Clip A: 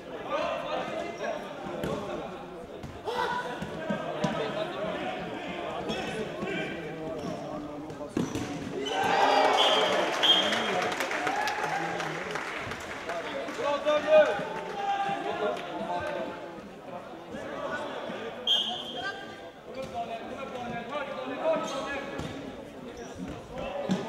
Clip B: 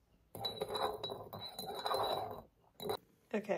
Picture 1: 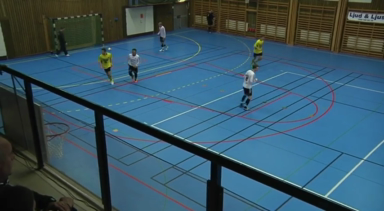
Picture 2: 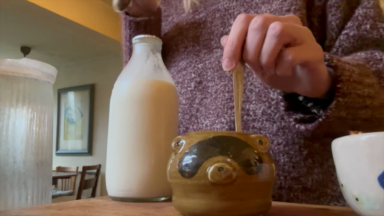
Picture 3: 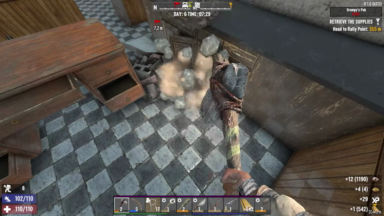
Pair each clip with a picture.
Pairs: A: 1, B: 2